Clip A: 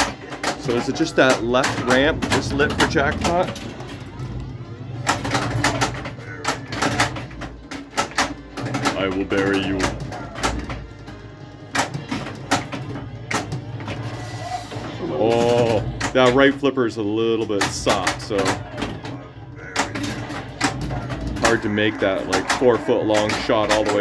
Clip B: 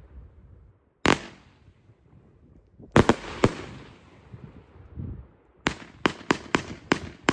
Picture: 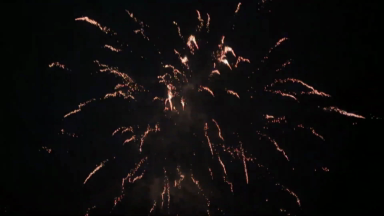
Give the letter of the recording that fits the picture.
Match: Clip B